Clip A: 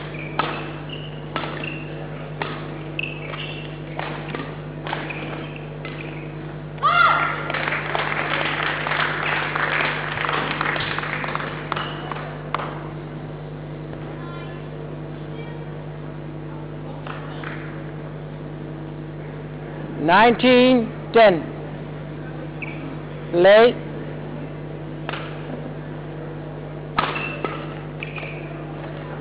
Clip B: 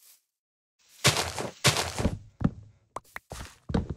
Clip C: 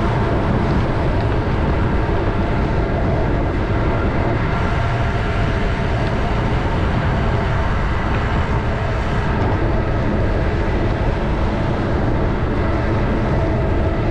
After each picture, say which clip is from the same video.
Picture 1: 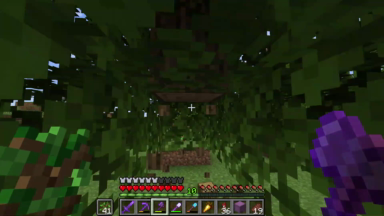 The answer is B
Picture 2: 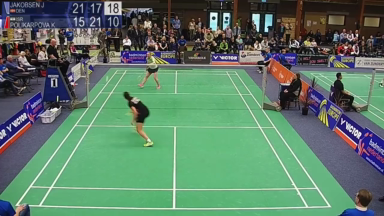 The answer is A